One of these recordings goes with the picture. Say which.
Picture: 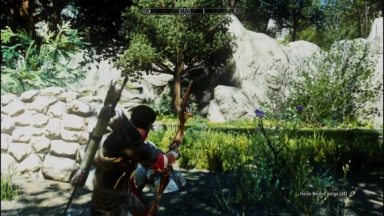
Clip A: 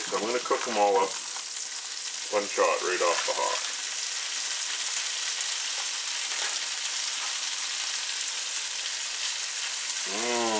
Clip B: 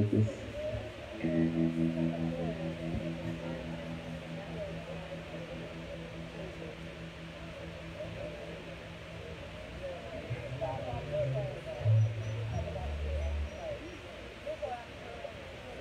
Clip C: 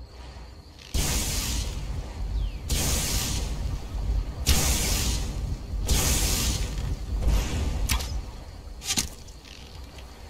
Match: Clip C